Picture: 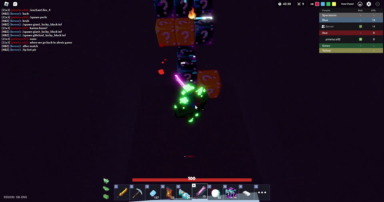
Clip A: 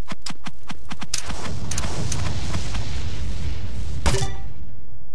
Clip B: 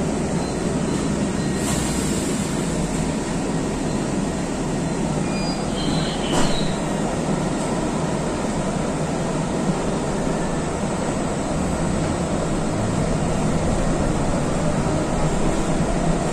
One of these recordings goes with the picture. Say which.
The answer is A